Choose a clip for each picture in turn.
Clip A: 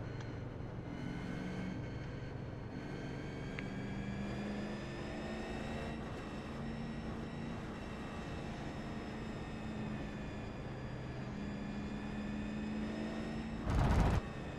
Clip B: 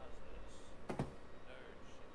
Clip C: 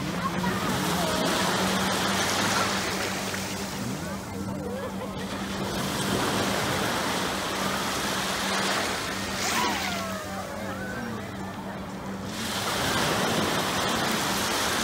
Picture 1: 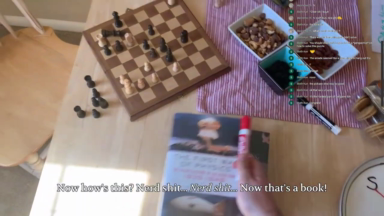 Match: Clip B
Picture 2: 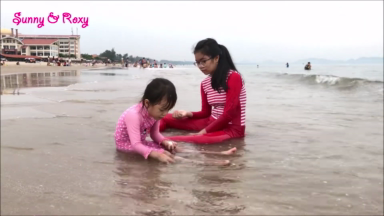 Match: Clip C